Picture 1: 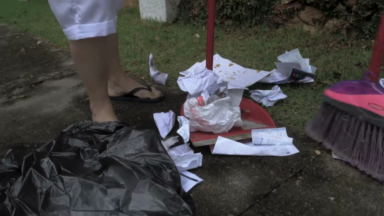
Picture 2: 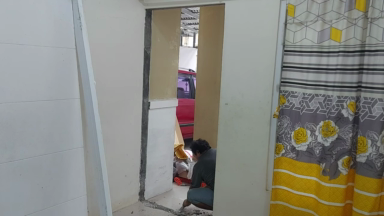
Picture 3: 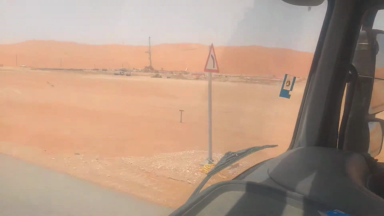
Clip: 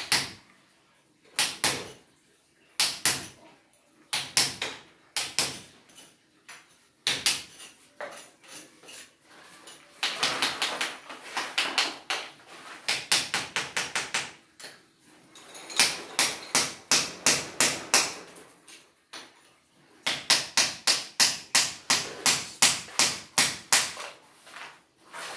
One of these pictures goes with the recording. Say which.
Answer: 2